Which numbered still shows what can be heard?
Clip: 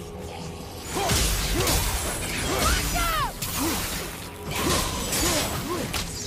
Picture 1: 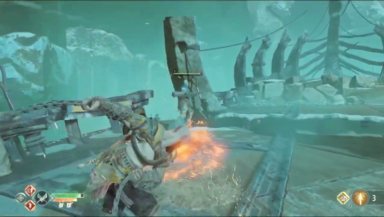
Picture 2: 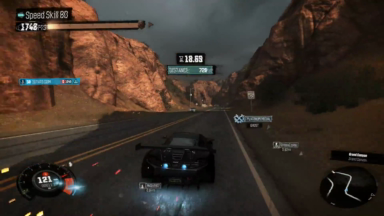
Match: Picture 1